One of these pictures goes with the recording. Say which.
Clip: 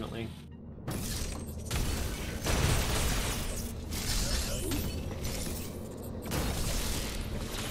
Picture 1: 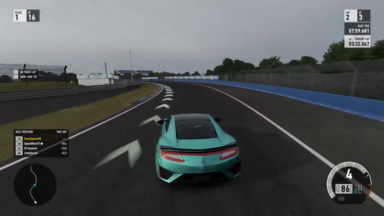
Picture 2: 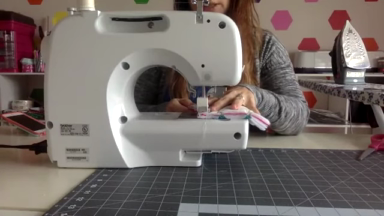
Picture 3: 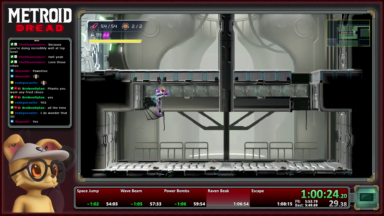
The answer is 3